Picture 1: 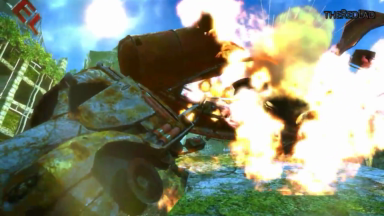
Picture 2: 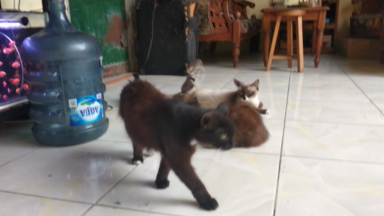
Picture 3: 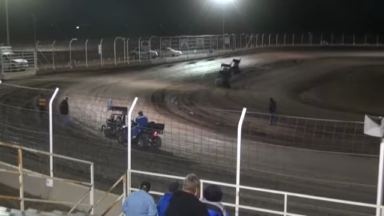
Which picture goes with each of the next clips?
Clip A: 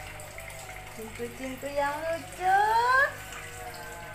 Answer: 2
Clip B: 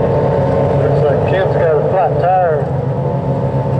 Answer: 3